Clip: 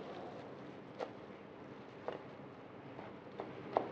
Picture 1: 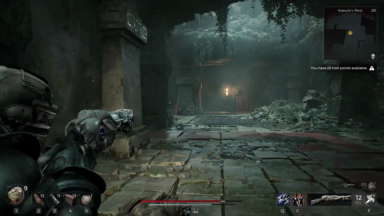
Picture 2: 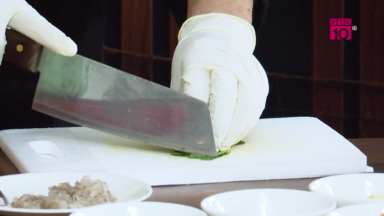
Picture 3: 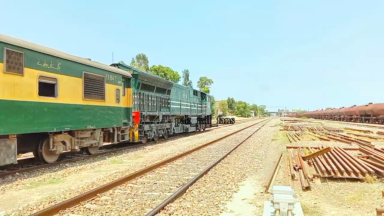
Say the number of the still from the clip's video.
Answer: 2